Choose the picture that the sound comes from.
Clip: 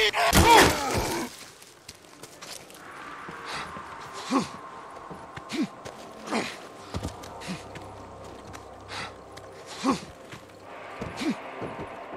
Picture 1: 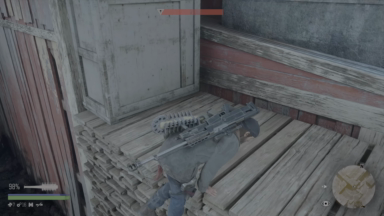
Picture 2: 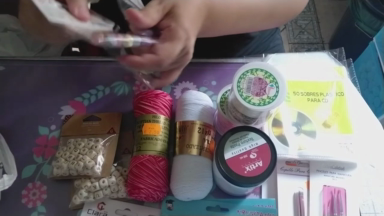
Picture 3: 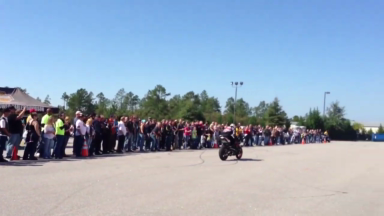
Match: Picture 1